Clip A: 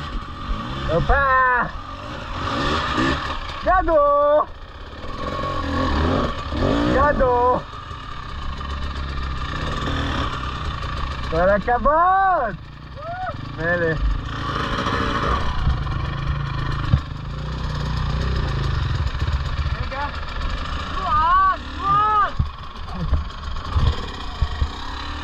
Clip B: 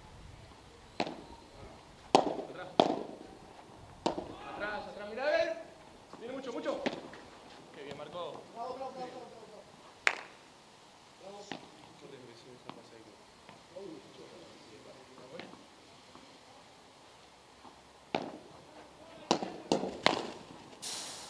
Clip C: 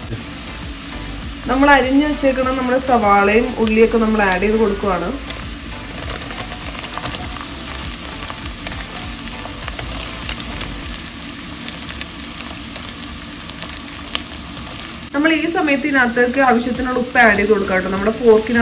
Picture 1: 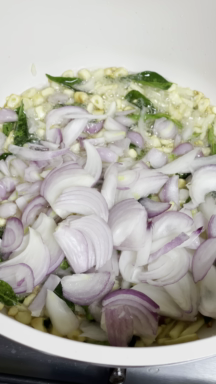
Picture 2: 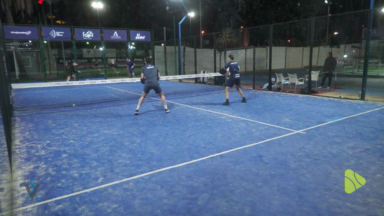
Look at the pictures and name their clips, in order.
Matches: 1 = C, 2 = B